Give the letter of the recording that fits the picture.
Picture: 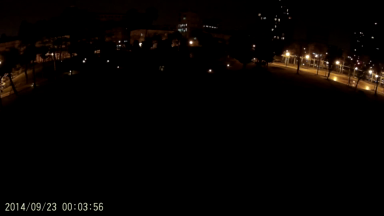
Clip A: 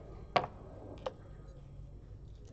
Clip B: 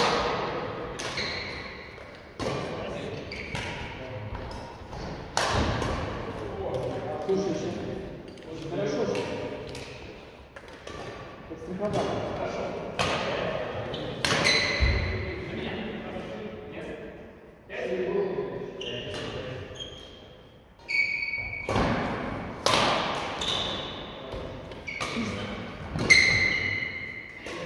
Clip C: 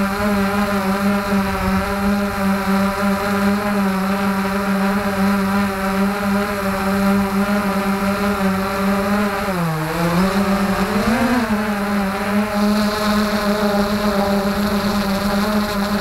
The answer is C